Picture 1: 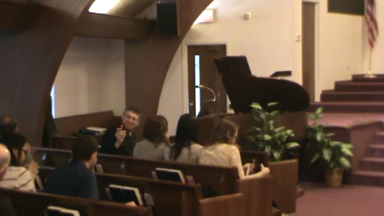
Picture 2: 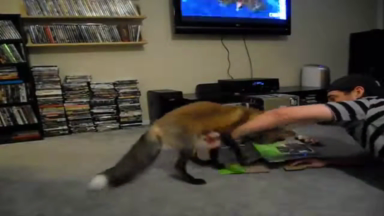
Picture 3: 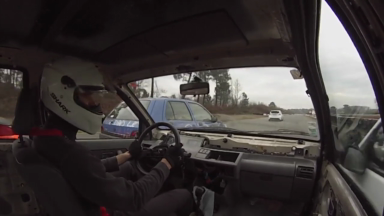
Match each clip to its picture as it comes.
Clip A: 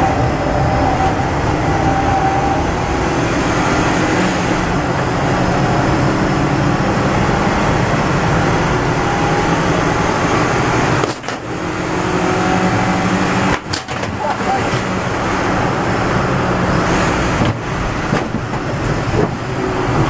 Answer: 3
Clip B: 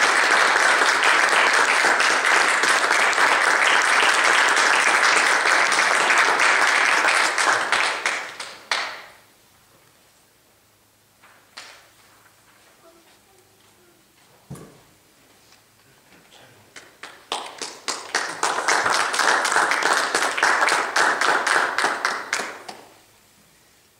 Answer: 1